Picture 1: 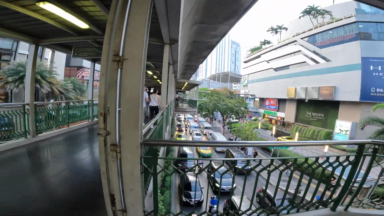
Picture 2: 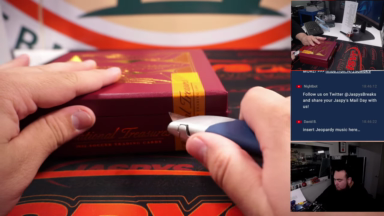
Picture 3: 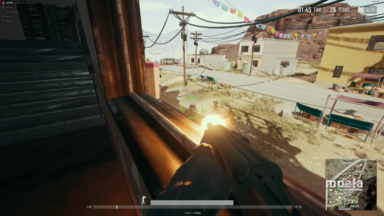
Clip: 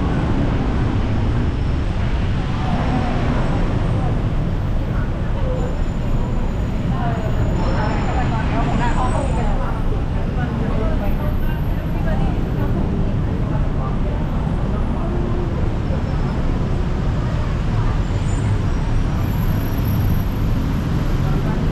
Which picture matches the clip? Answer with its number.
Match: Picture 1